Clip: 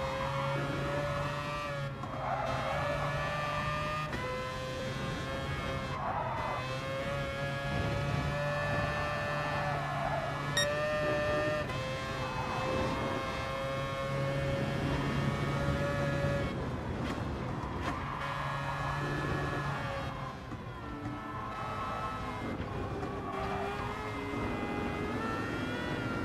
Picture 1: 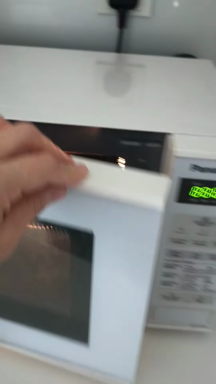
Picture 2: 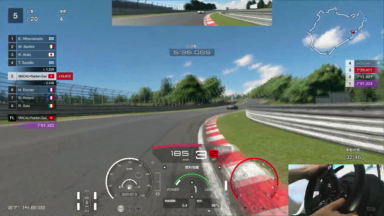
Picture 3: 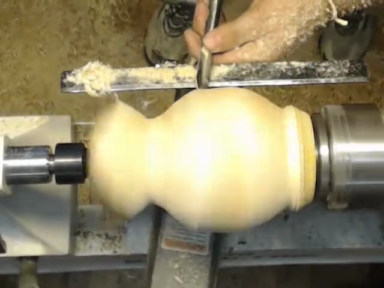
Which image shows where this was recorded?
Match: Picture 2